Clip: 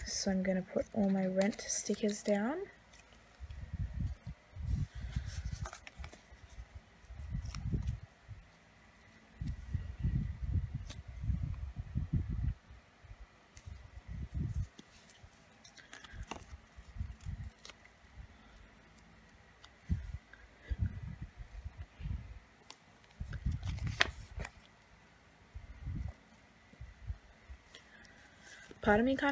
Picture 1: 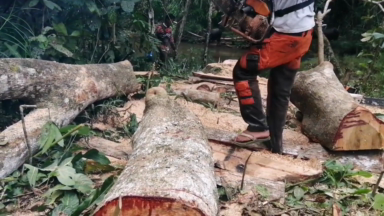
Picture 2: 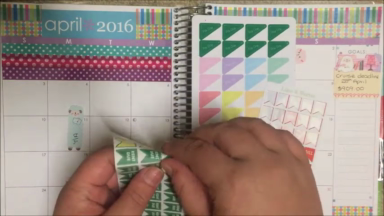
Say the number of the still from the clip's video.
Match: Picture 2